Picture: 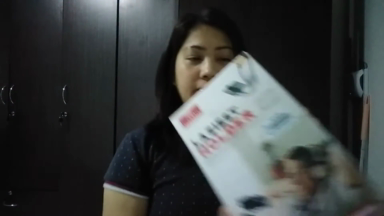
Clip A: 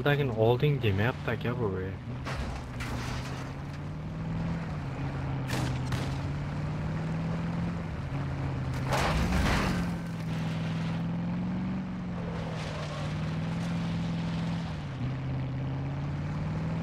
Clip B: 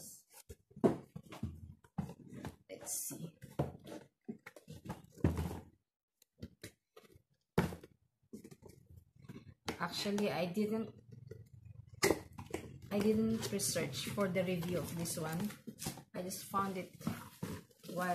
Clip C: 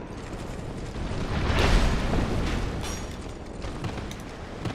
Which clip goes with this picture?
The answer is B